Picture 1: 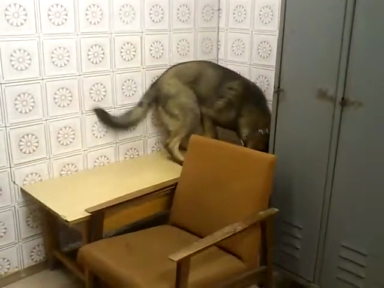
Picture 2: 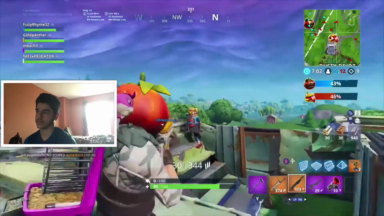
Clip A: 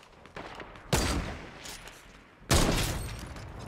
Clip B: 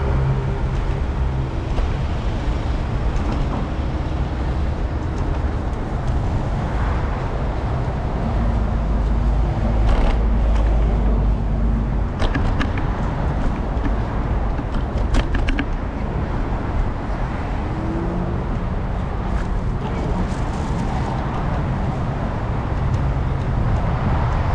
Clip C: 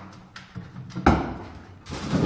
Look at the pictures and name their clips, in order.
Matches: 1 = C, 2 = A